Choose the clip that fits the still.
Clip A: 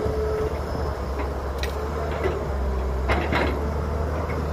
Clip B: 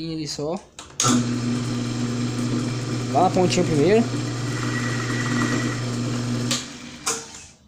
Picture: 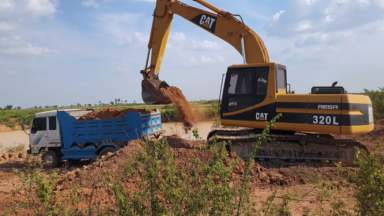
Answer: A